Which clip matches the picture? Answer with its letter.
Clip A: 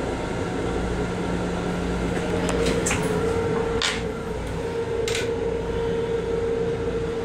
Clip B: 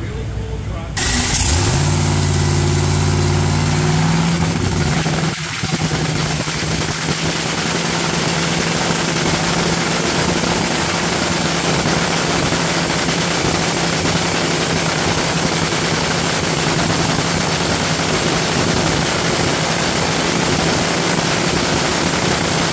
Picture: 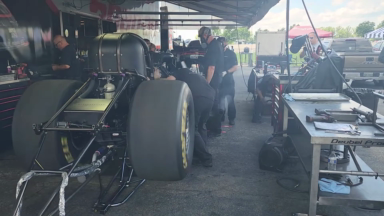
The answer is B